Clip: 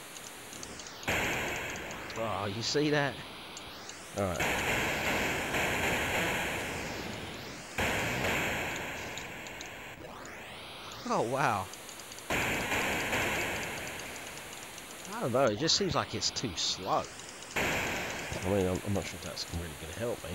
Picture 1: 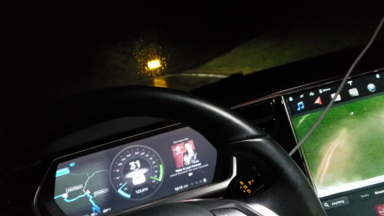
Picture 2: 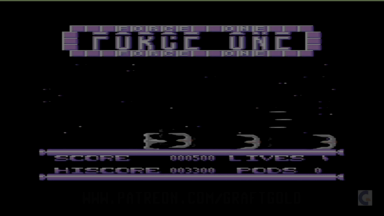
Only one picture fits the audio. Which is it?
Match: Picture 2